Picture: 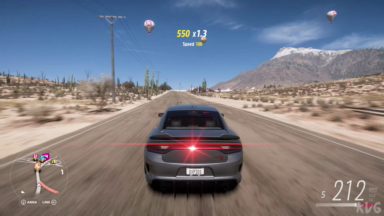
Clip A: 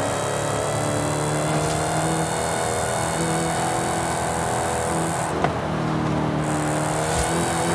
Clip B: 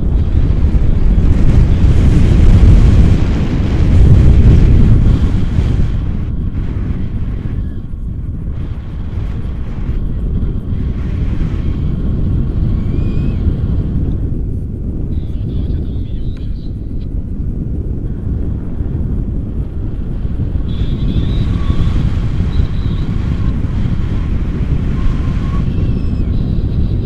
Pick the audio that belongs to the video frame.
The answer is A